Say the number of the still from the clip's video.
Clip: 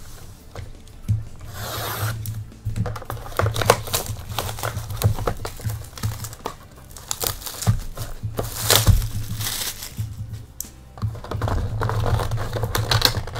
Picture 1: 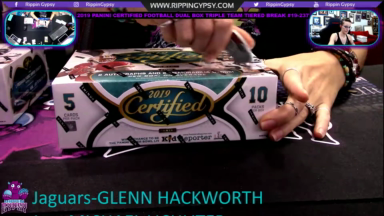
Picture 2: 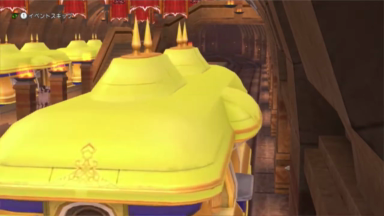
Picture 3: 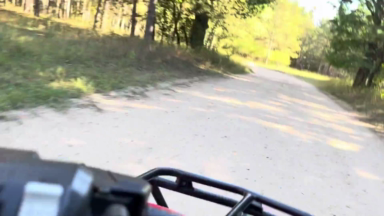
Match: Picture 1